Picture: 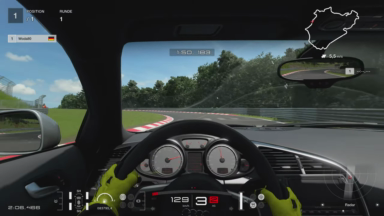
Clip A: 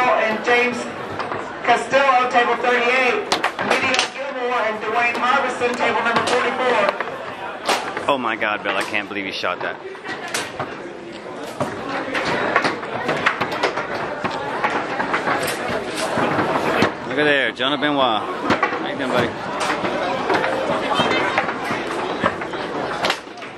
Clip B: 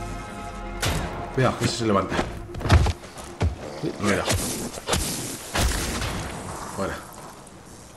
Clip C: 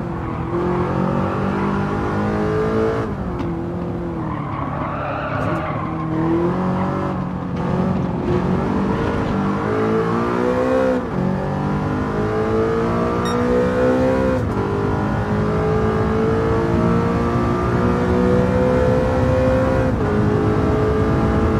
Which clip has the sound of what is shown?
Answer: C